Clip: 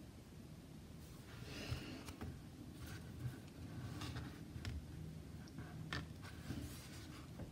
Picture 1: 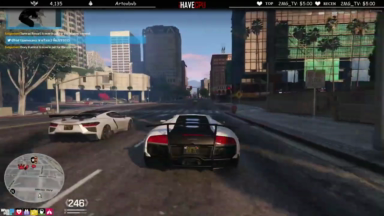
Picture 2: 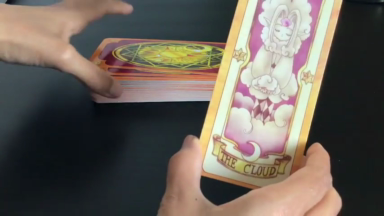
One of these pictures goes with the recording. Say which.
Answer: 2